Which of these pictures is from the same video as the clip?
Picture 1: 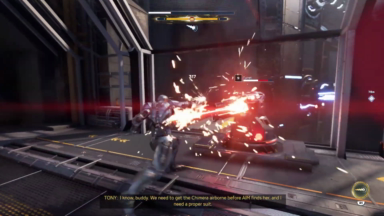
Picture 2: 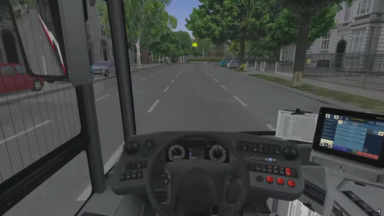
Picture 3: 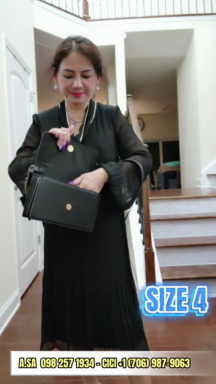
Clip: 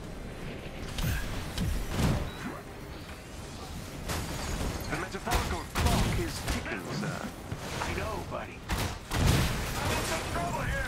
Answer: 1